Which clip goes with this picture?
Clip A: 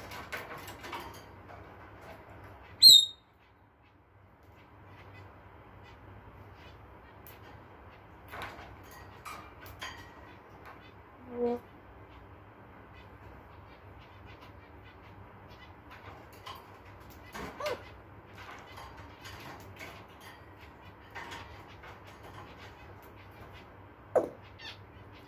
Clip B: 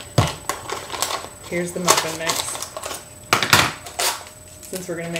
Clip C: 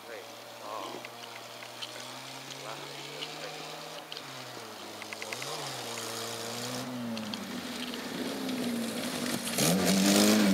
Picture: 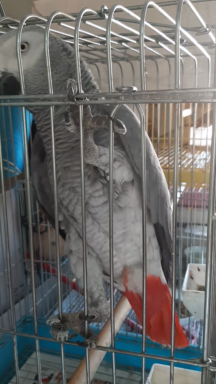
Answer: A